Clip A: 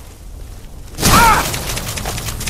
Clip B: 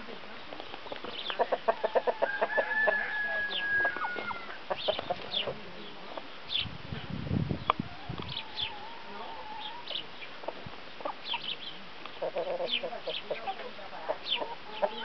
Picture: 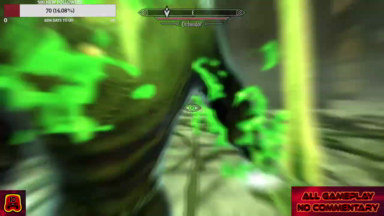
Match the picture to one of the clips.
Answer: A